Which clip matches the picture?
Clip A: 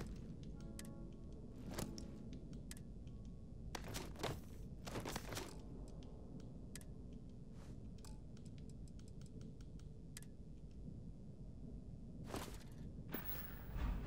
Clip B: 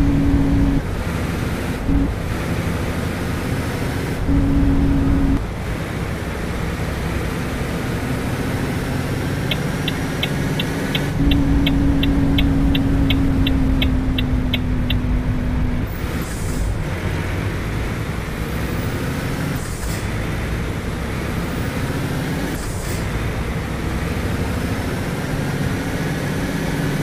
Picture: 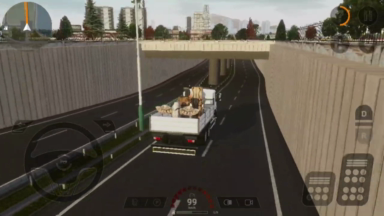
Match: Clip B